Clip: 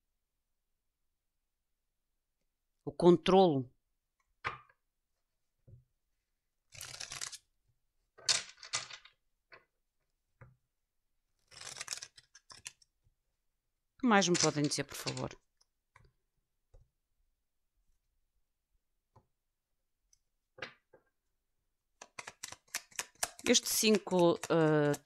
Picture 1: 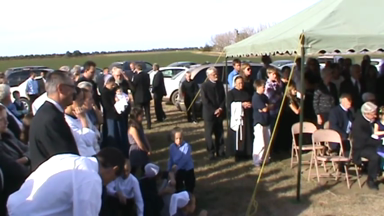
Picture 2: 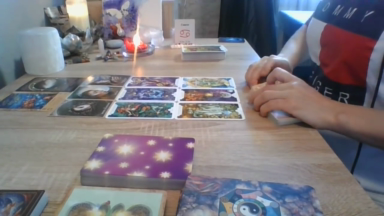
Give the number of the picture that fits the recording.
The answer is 2